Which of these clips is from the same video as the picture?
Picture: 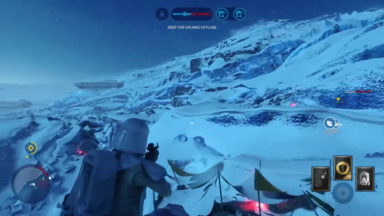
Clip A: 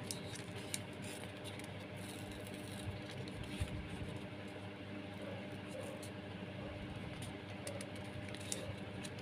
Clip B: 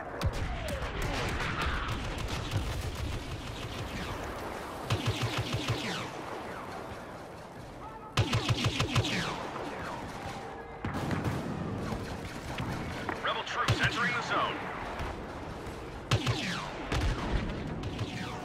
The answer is B